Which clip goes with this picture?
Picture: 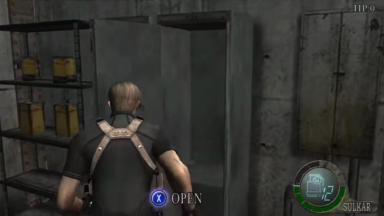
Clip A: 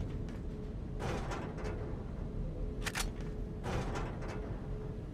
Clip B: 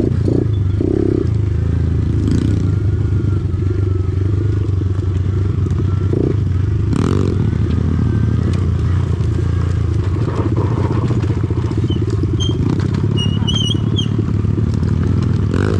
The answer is A